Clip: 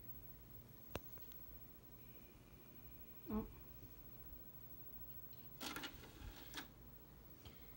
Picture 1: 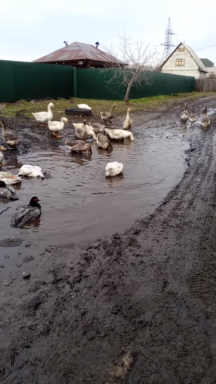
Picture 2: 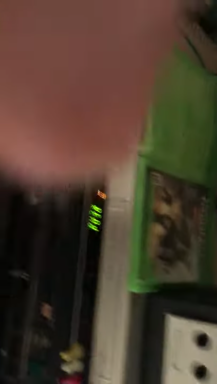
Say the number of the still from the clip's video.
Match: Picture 2